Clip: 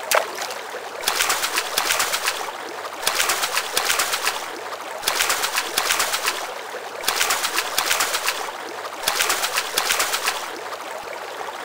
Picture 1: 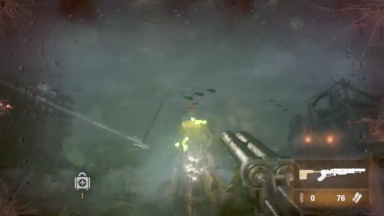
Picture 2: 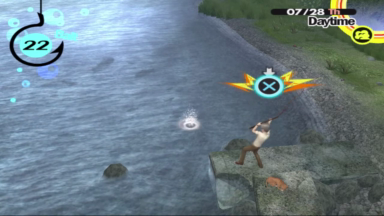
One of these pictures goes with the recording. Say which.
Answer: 2